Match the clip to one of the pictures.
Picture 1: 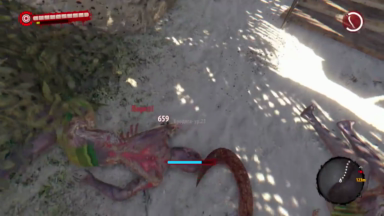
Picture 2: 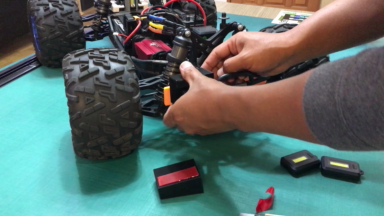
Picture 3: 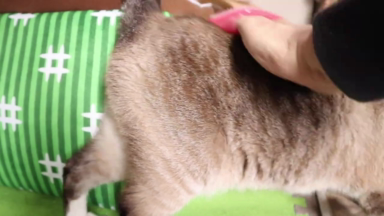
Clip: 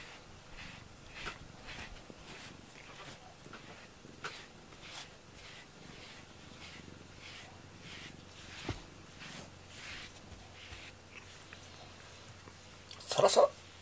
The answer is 3